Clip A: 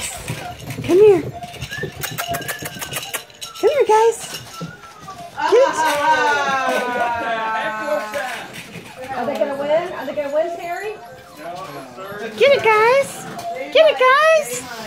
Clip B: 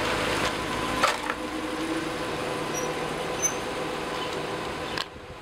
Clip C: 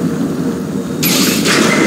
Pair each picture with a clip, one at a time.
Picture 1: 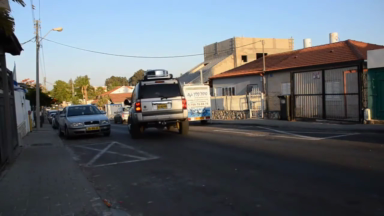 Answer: B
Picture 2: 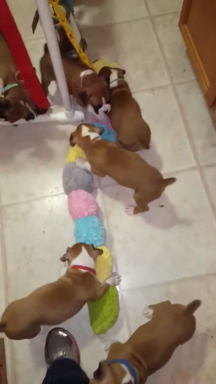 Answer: A